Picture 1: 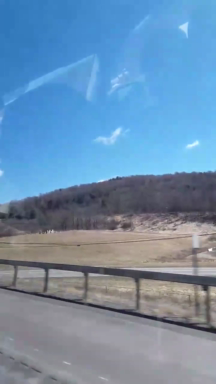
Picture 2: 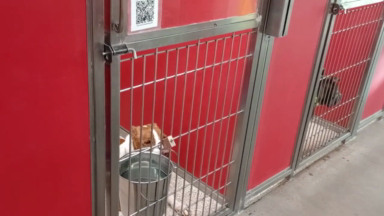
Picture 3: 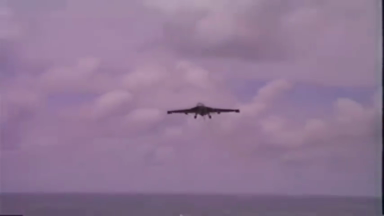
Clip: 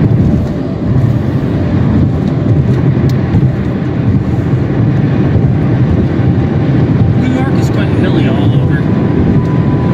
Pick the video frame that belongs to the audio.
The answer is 1